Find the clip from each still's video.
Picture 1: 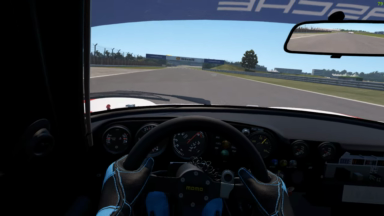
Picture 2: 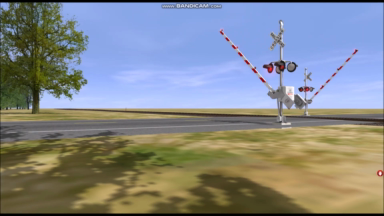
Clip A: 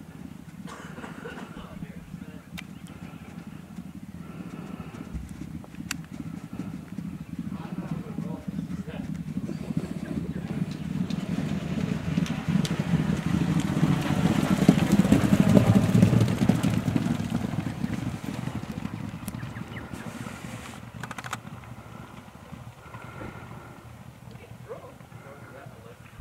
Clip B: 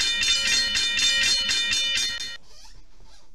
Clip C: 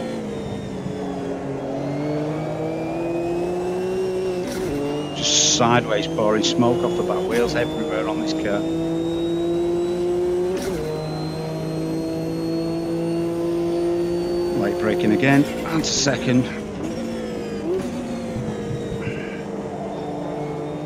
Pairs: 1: C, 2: B